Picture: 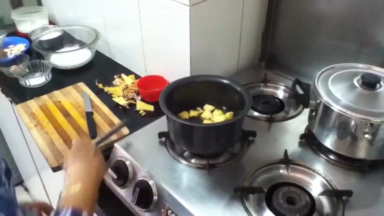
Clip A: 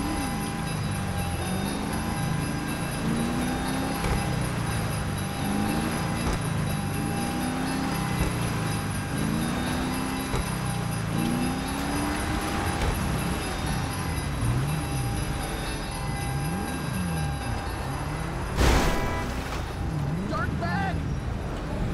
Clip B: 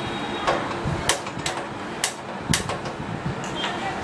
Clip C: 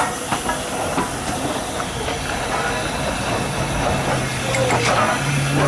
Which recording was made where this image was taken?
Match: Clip B